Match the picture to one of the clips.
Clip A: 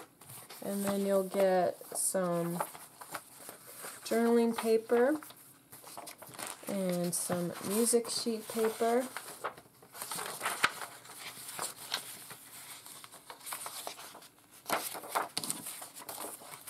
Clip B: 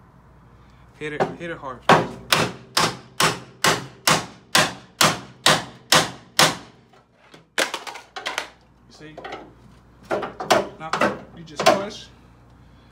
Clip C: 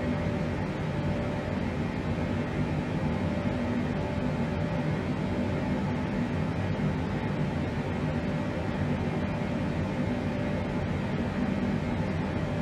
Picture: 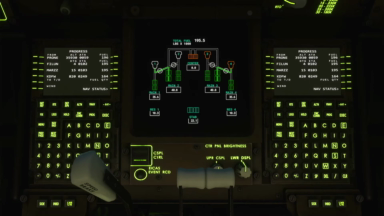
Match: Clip C